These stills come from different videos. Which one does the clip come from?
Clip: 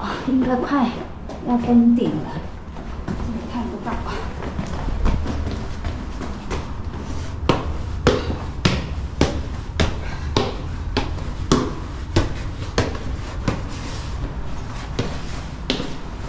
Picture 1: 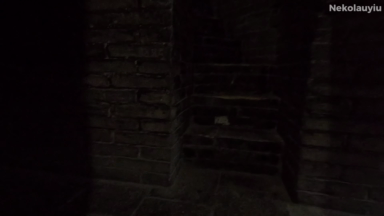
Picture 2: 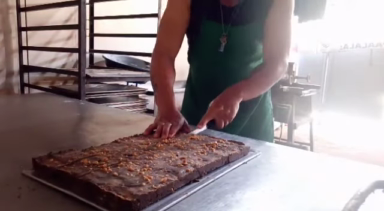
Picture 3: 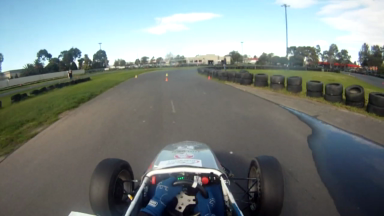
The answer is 1